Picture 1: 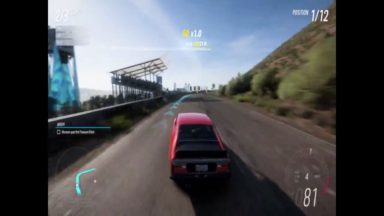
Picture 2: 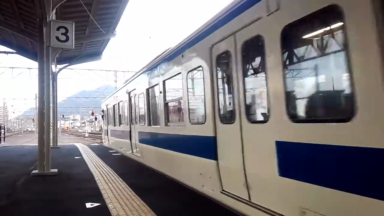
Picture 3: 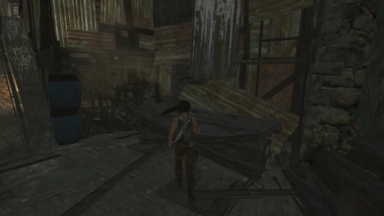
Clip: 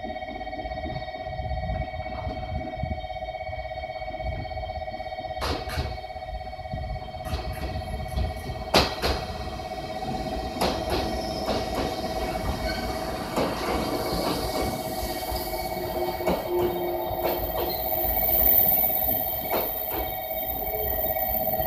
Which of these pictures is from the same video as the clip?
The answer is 2